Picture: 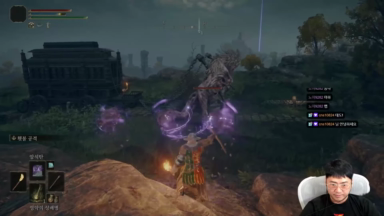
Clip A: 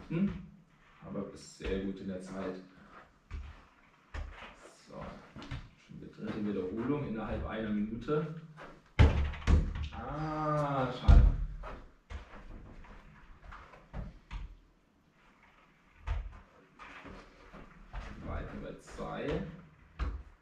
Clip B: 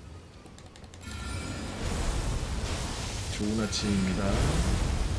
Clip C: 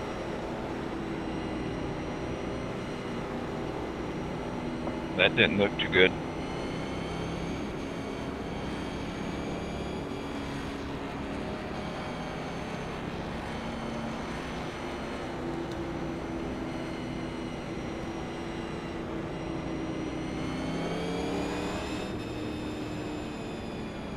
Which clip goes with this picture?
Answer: B